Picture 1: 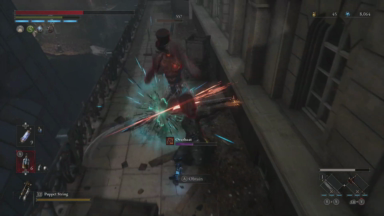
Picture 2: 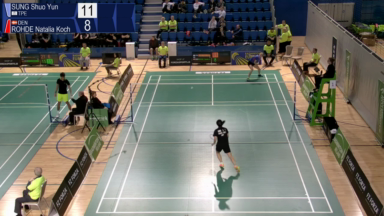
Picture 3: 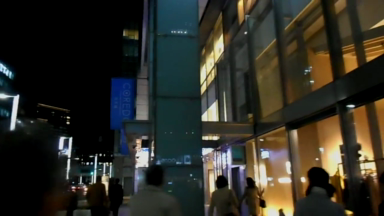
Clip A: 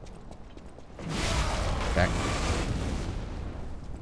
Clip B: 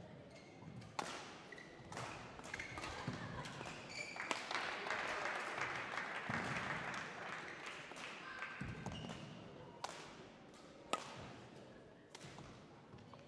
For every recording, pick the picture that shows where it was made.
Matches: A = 1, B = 2